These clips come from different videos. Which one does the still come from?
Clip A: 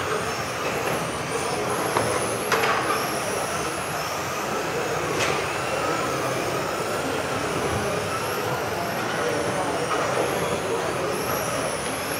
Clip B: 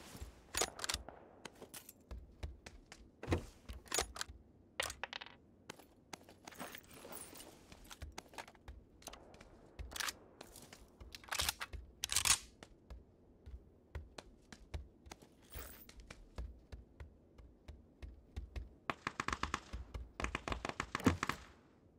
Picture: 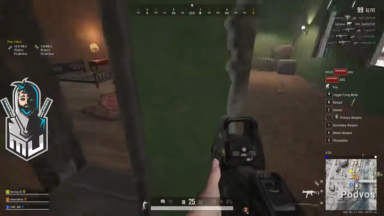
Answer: B